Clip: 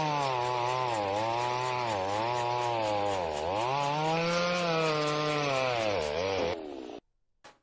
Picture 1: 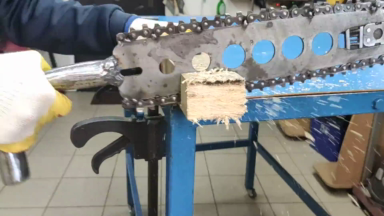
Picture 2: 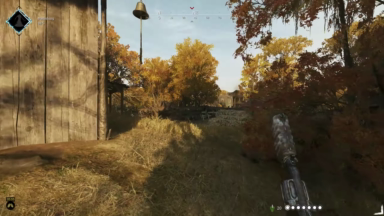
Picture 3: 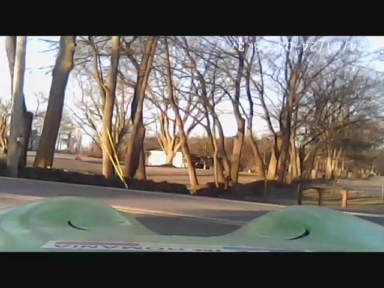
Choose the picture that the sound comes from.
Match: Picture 1